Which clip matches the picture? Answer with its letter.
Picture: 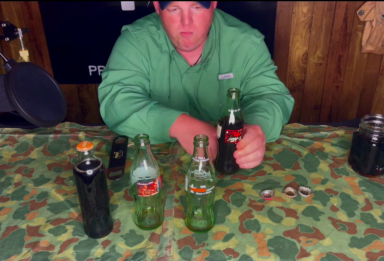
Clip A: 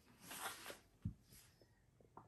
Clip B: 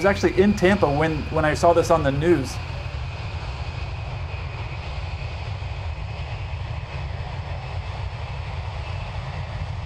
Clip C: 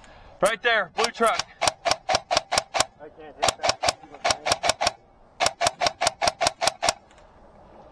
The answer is A